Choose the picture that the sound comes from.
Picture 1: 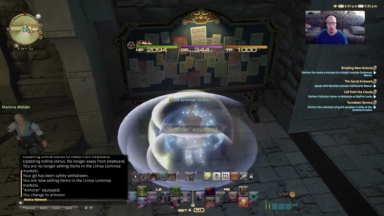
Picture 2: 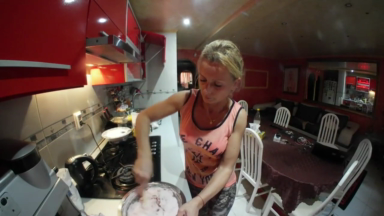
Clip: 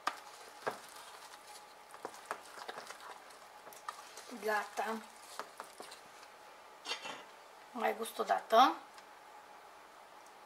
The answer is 2